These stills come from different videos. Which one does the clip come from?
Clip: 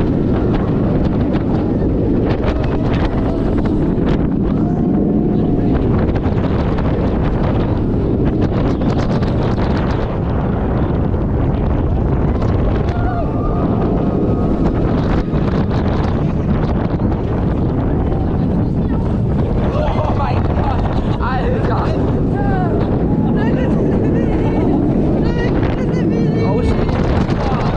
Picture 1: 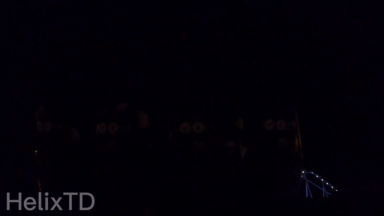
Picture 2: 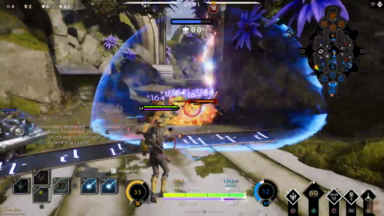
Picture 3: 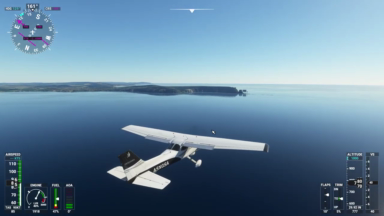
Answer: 1